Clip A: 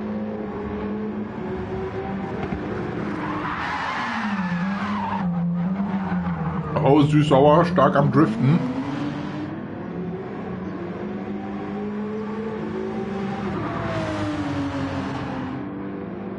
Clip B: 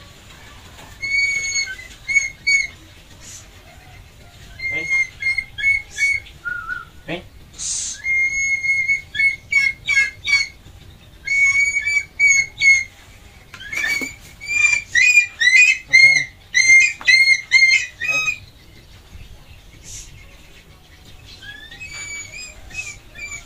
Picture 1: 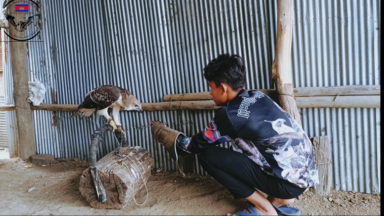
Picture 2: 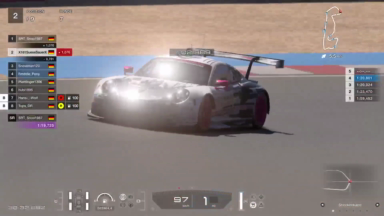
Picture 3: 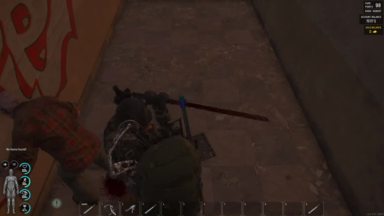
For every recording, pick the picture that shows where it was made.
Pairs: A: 2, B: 1